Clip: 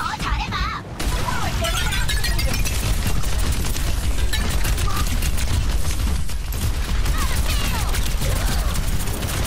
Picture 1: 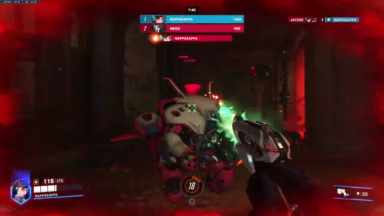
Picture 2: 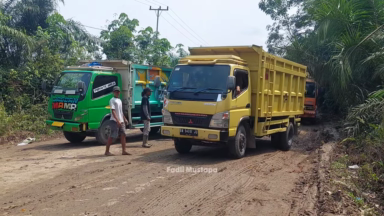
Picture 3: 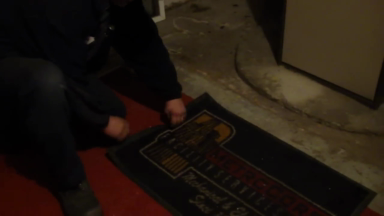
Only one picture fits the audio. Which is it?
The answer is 1